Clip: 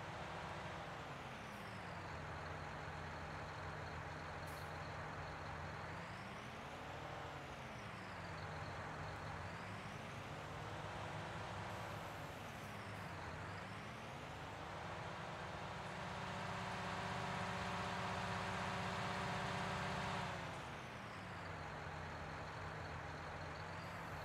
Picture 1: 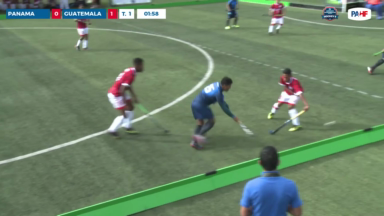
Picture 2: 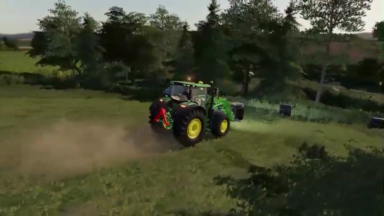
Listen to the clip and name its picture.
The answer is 2